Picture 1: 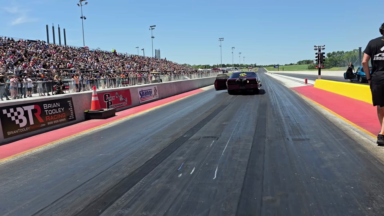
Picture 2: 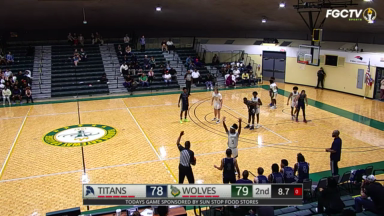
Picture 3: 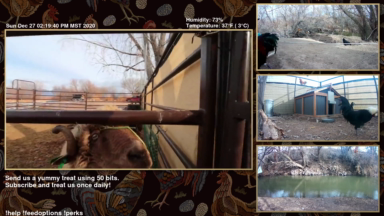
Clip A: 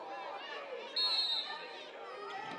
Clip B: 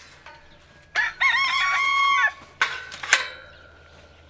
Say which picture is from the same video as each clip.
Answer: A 2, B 3